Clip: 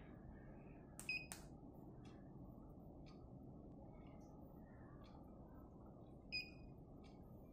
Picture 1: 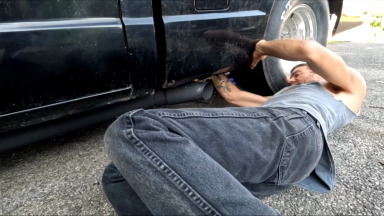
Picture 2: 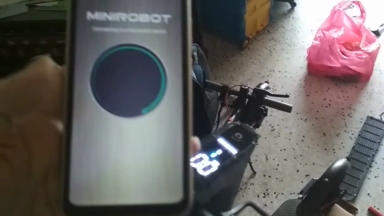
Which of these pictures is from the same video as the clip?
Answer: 2